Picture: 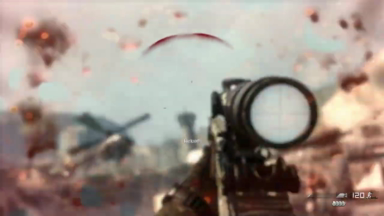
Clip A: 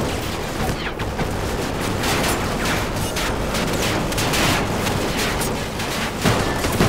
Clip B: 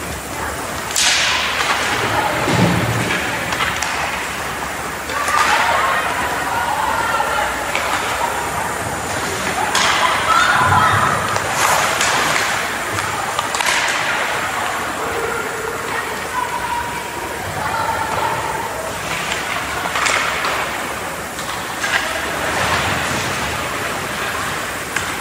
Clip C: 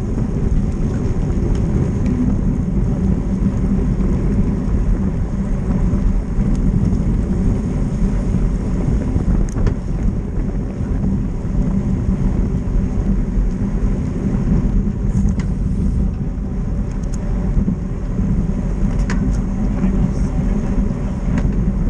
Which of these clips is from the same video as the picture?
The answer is A